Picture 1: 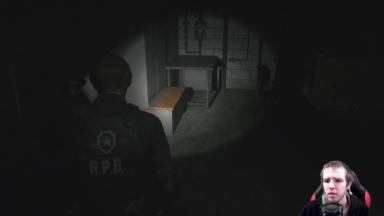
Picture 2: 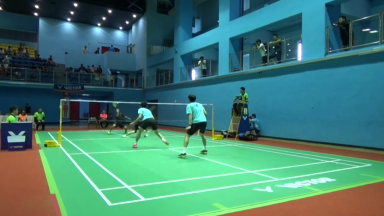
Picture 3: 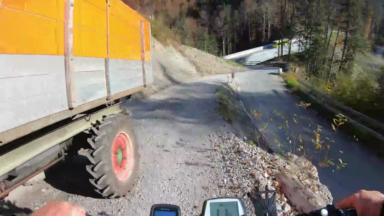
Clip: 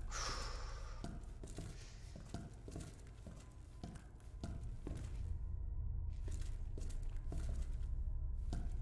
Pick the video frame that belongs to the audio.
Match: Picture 1